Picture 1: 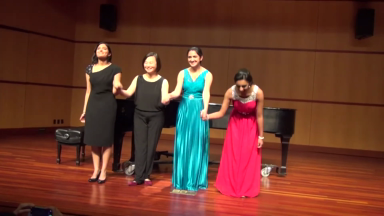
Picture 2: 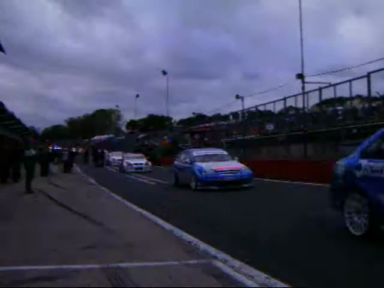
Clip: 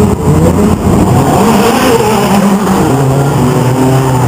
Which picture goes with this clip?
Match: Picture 2